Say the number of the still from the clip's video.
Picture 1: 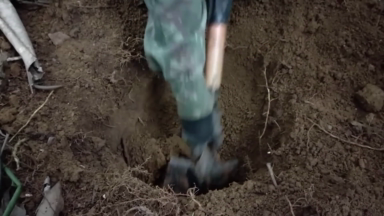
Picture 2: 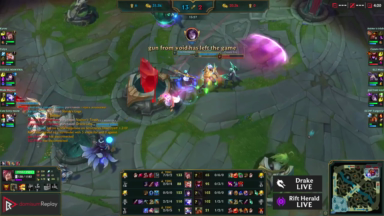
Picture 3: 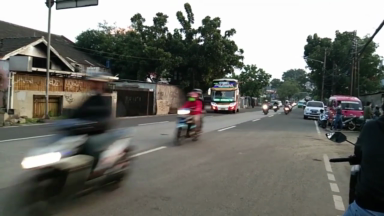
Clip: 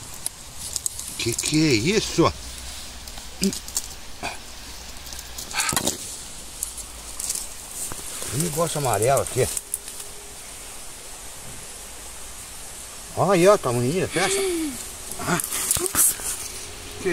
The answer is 1